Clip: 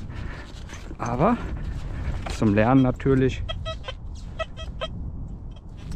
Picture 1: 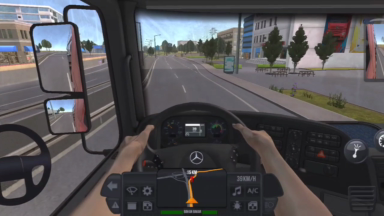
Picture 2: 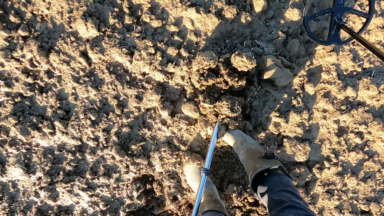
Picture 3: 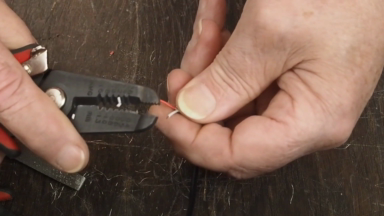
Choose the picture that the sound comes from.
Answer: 2